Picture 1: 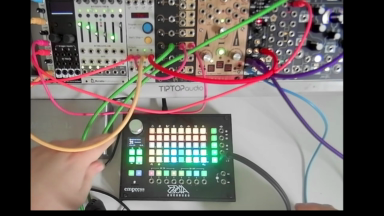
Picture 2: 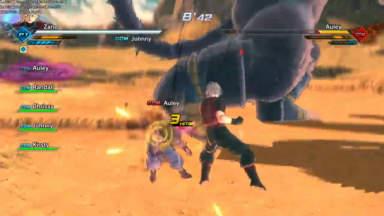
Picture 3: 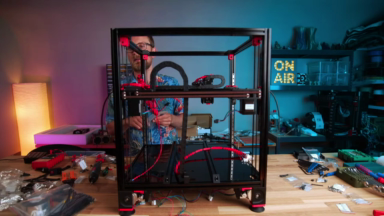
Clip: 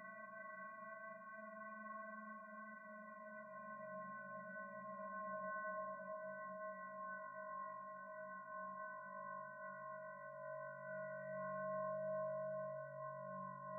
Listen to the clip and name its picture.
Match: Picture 1